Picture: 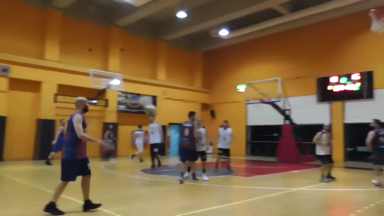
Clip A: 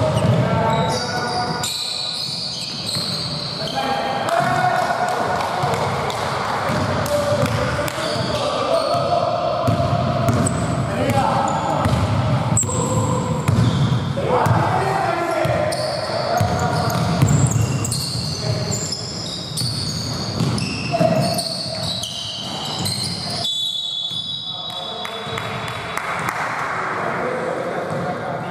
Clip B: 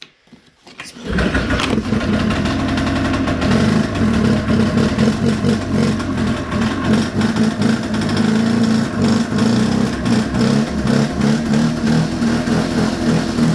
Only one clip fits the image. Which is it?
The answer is A